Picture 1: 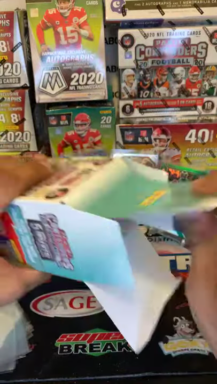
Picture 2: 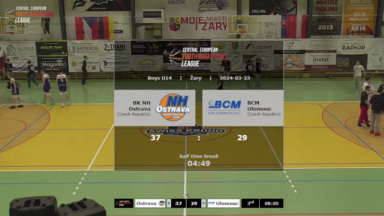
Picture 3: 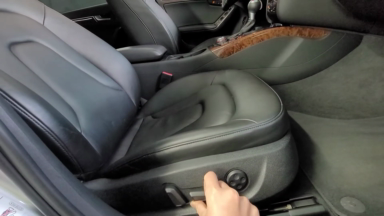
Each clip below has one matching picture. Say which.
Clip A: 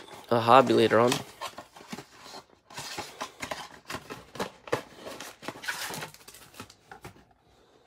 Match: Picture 1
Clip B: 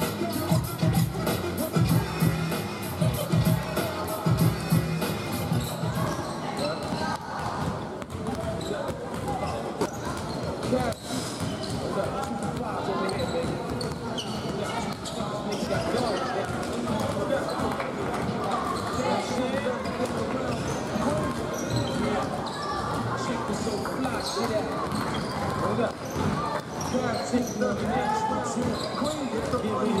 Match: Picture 2